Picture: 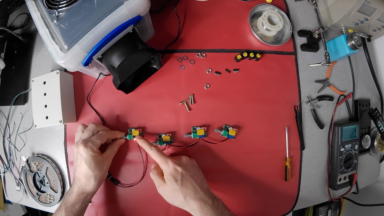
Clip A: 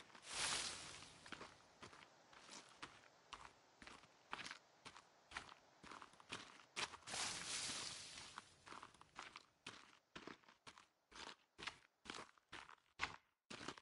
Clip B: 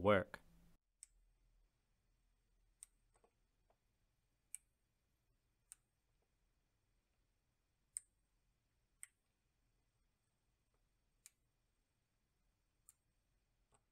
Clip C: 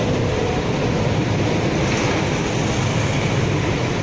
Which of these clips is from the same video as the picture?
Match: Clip B